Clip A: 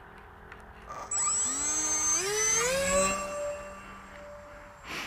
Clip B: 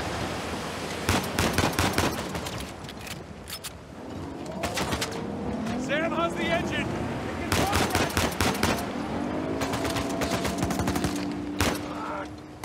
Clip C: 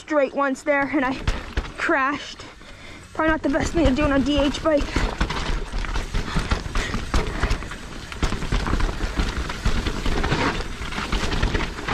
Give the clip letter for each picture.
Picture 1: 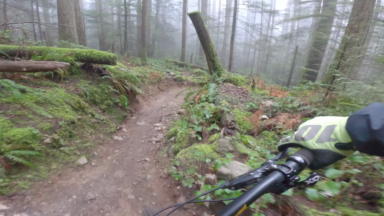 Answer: C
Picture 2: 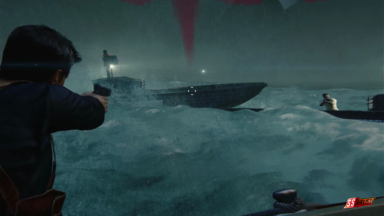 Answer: B